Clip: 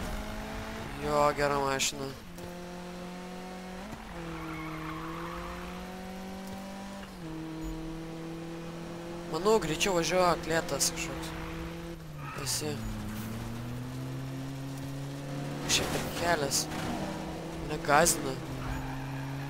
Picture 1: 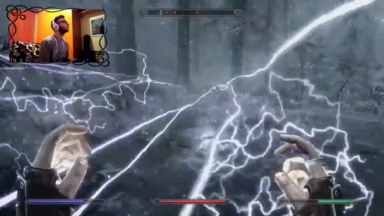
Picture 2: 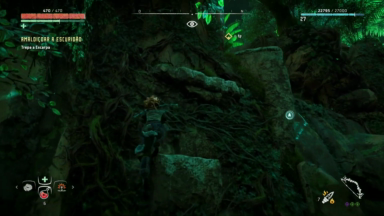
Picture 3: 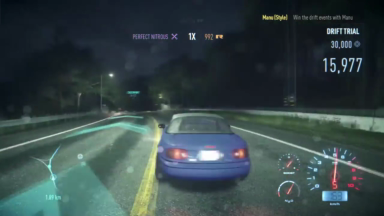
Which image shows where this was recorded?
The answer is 3